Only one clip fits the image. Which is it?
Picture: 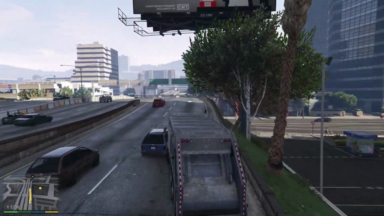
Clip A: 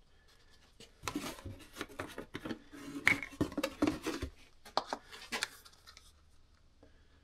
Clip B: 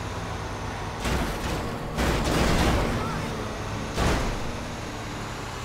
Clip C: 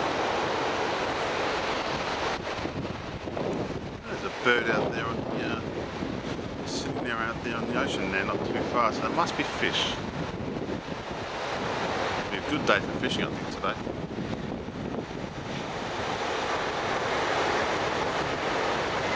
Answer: B